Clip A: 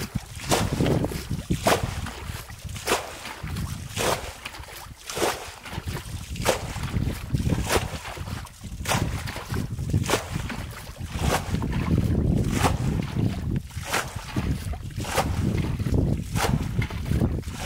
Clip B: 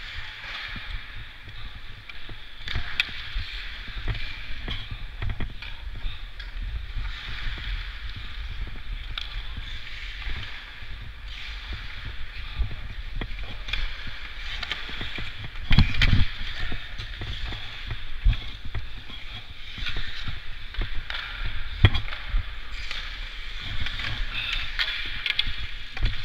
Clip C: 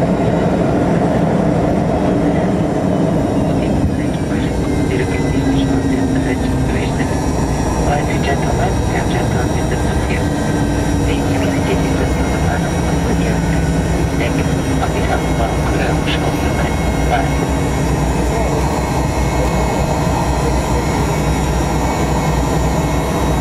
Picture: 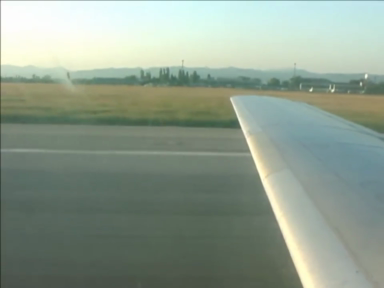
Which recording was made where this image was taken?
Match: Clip C